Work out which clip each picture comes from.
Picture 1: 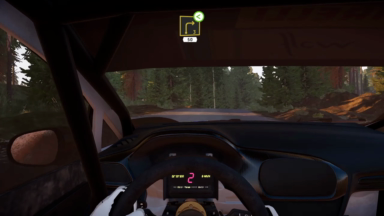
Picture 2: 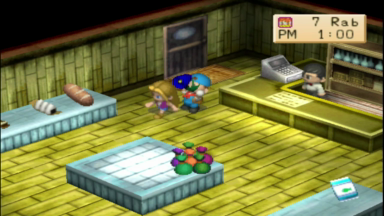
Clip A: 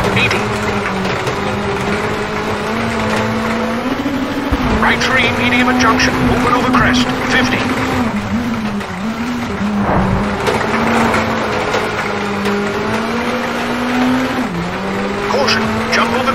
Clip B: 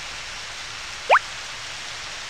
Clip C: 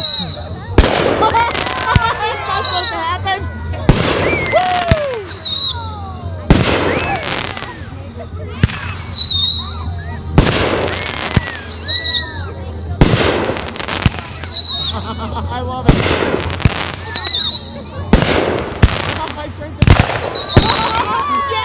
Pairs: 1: A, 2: B